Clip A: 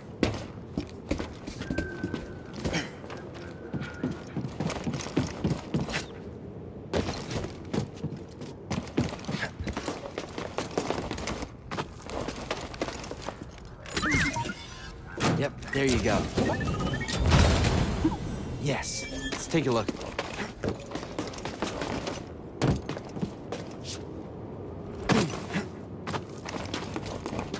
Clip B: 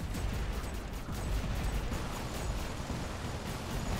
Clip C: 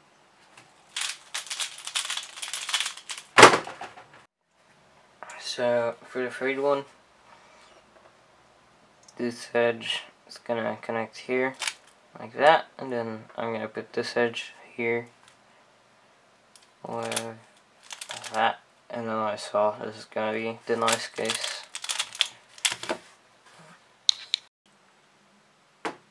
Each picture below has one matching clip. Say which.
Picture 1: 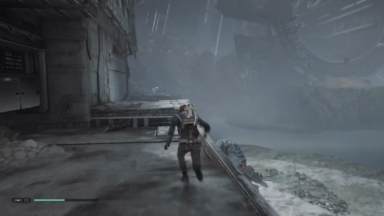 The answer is A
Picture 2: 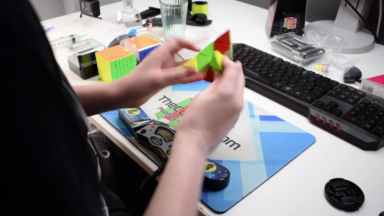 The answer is C